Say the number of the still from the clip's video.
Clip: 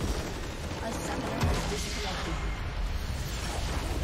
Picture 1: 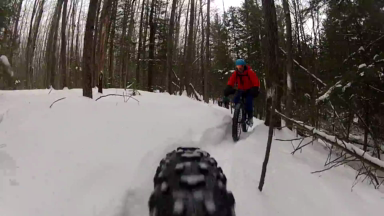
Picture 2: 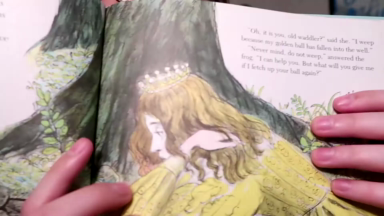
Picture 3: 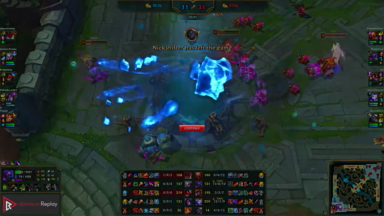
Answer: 3